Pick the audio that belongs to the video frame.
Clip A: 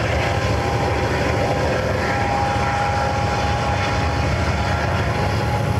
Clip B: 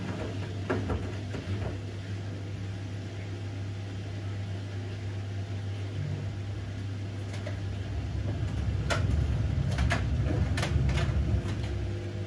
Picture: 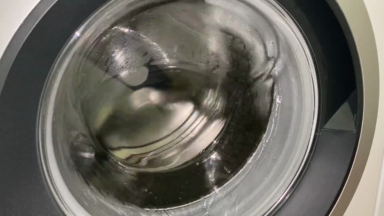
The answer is B